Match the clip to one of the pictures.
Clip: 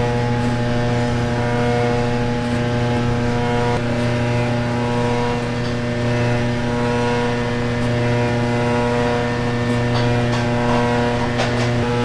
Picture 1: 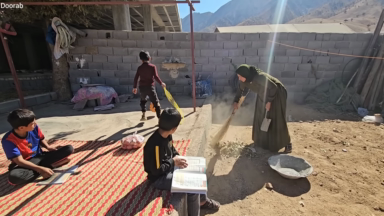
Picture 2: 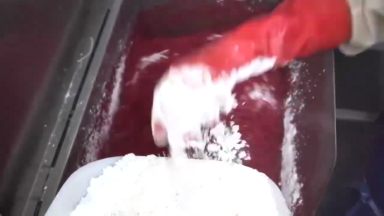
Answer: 2